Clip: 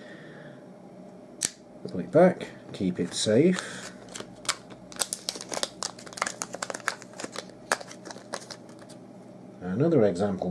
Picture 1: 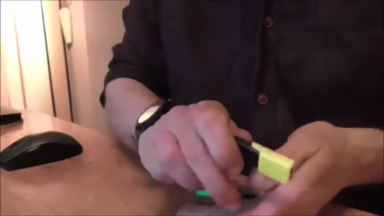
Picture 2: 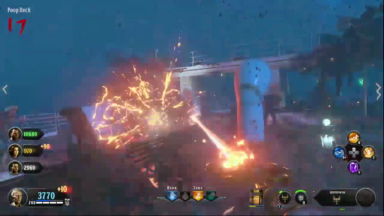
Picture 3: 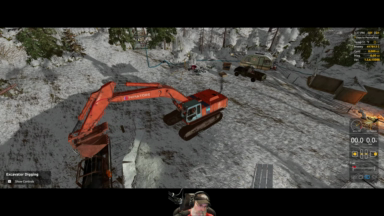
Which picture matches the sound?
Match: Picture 1